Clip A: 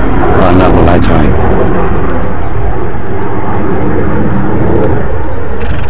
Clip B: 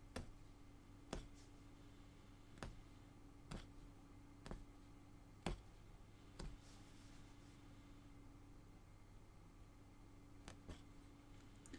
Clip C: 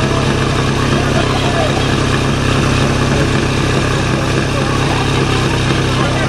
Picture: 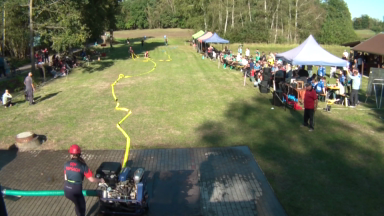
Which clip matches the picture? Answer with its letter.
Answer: C